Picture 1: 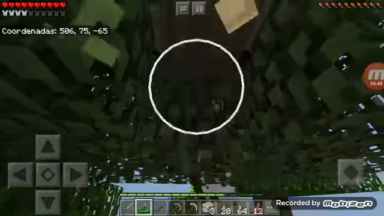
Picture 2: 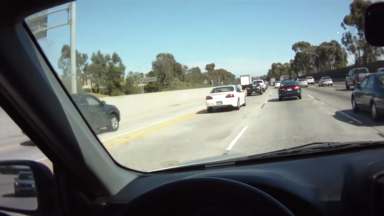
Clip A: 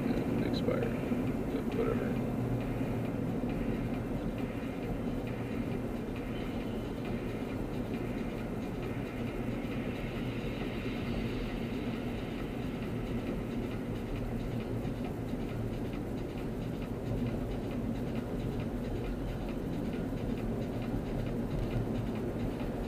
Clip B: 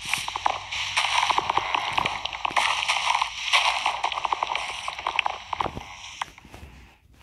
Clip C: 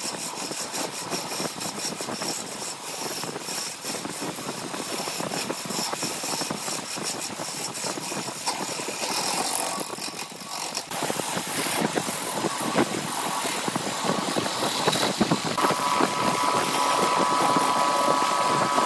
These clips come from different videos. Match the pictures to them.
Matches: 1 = B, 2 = A